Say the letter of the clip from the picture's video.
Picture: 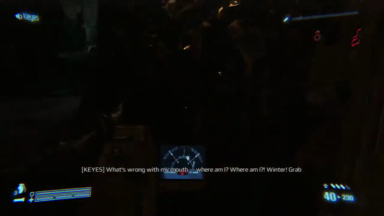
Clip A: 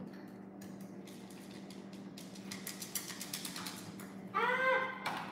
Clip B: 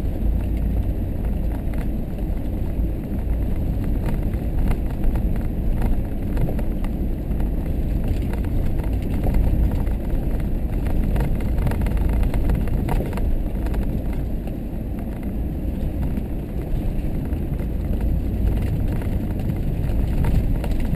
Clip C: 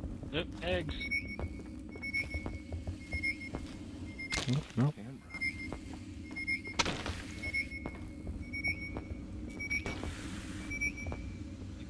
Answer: C